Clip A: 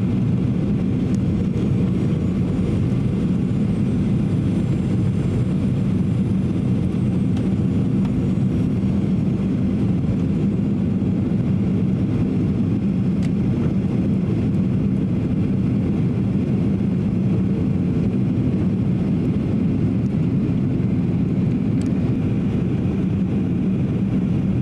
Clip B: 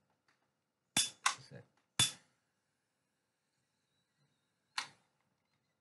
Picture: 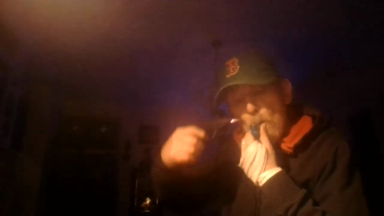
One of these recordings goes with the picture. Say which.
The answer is B